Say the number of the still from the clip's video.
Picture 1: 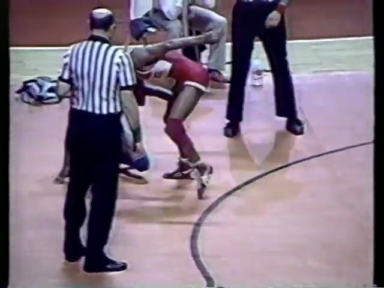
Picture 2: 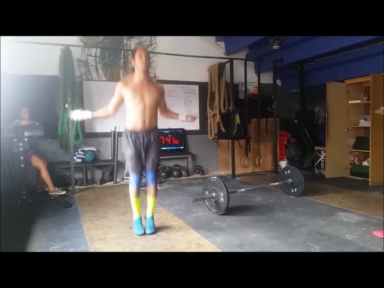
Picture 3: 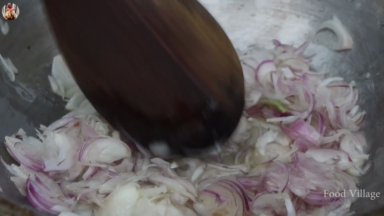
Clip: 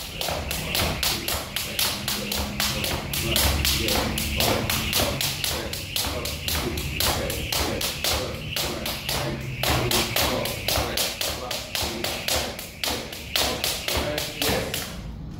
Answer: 2